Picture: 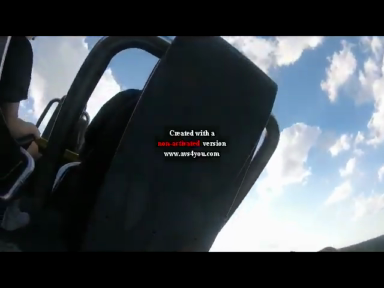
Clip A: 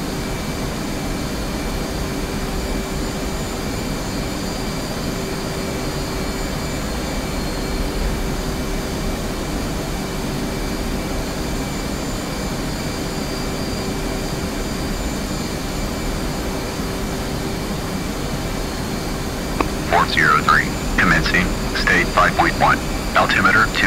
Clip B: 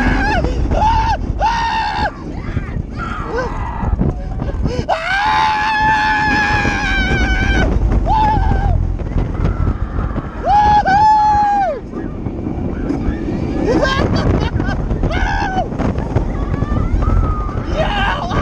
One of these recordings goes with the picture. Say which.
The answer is B